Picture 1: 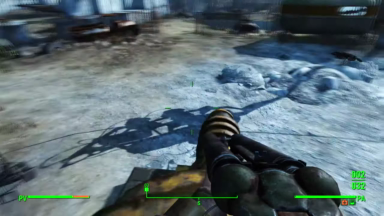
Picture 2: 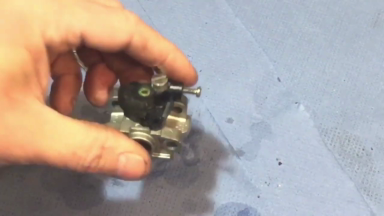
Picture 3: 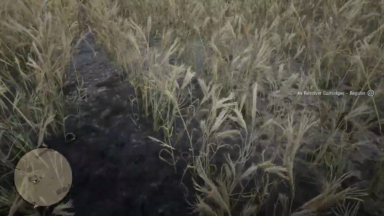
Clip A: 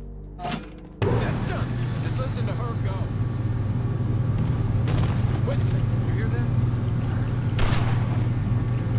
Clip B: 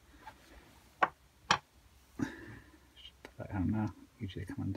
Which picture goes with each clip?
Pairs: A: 1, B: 2